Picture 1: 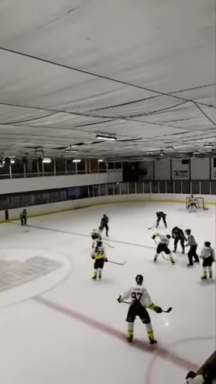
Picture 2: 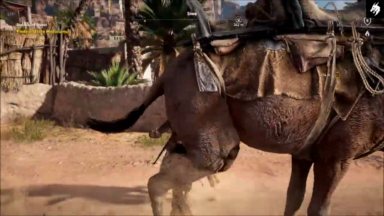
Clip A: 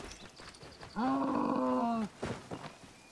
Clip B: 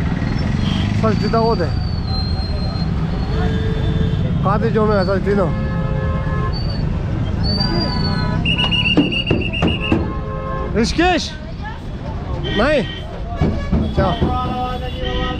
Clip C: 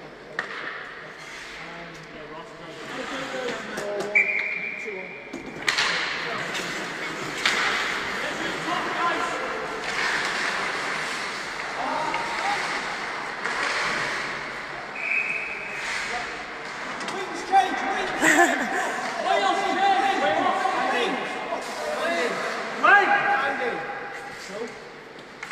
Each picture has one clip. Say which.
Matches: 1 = C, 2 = A